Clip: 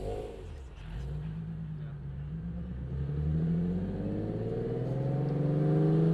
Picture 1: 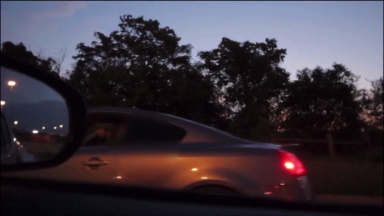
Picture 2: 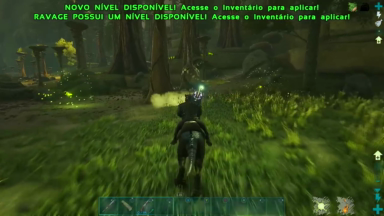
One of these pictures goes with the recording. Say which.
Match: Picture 1